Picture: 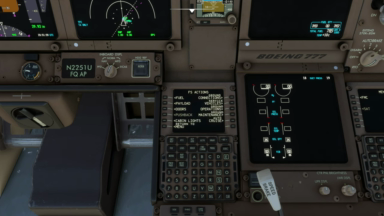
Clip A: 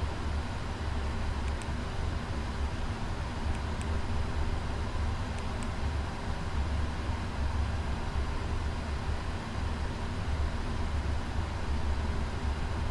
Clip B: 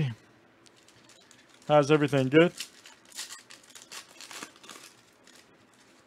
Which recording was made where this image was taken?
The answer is A